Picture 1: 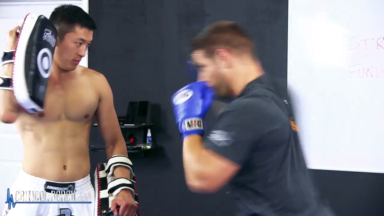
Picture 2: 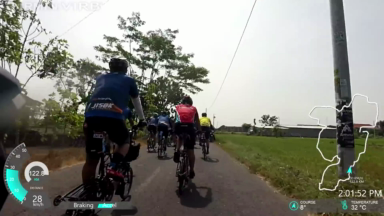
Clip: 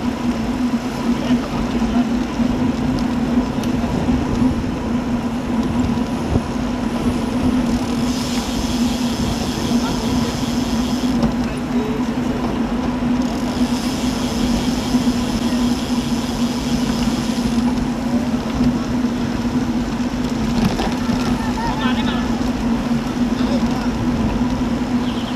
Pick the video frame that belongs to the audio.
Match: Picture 2